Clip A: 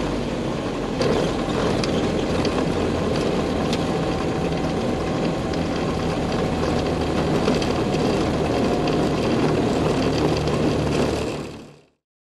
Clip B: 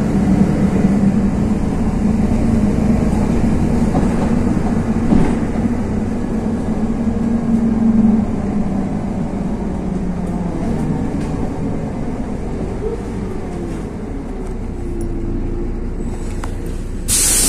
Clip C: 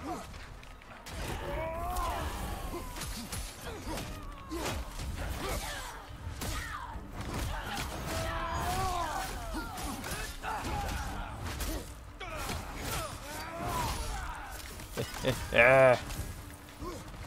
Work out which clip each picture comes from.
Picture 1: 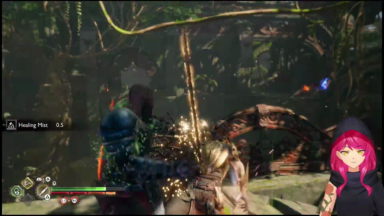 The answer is C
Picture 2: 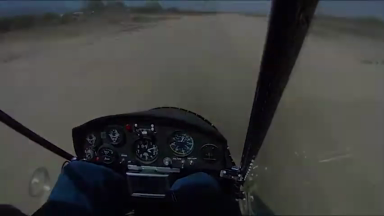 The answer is A